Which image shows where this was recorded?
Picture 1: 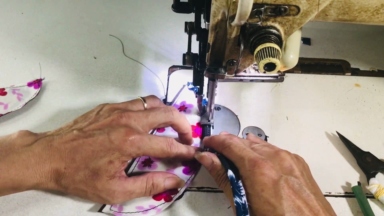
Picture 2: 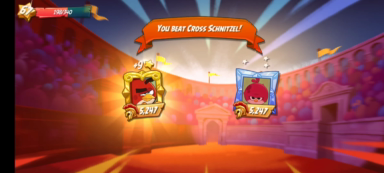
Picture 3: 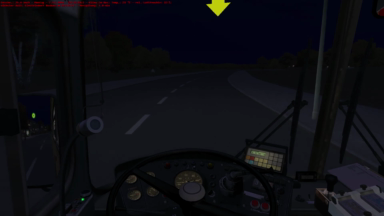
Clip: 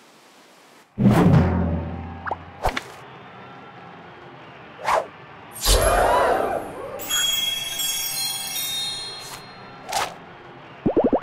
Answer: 2